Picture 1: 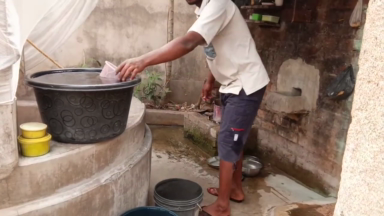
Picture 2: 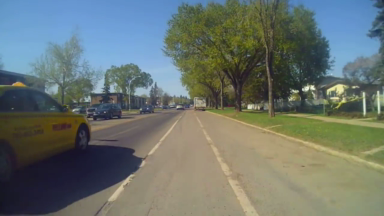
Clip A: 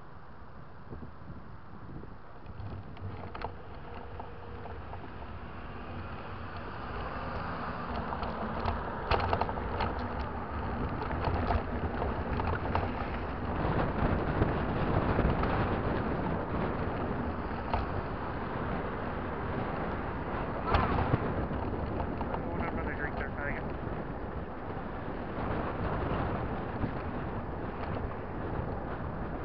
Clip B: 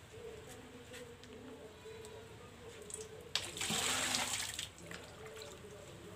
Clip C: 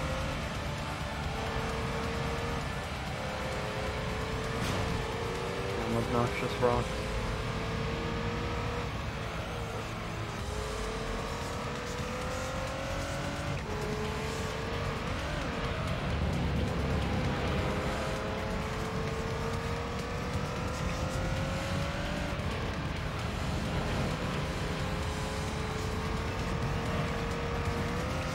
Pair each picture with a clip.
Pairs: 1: B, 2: A